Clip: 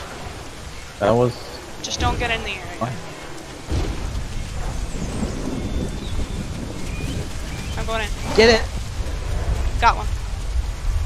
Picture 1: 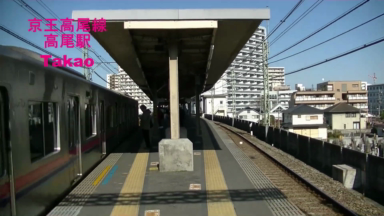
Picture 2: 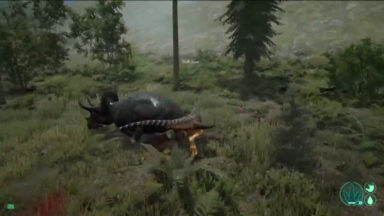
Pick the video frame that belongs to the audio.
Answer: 2